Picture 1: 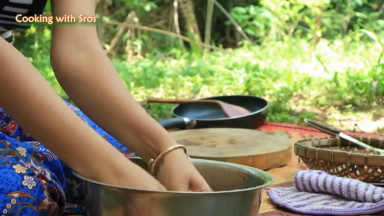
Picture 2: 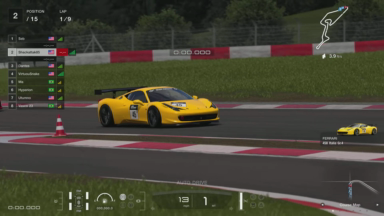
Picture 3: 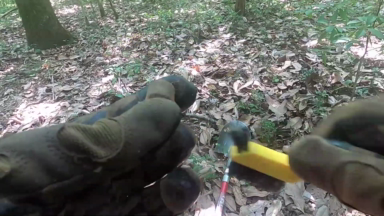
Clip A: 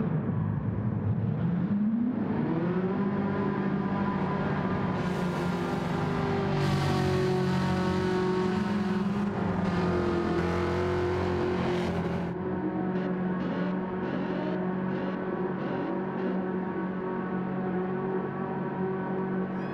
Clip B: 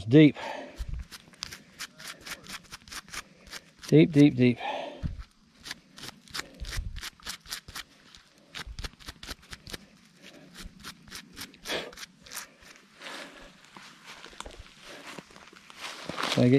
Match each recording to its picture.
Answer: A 2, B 3